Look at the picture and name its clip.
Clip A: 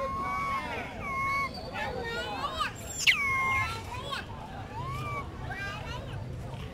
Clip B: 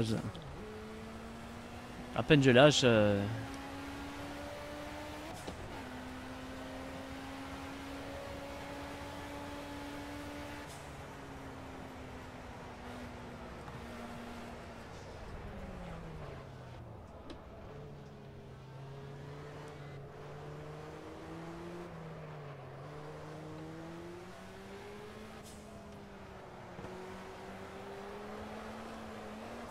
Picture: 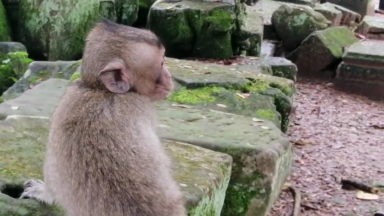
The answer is A